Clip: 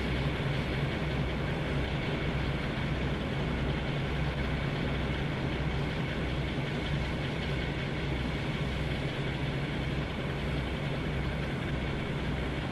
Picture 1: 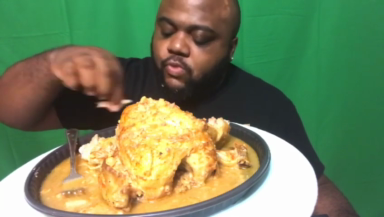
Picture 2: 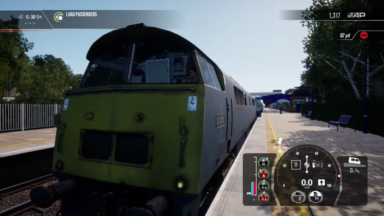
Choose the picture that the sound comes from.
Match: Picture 2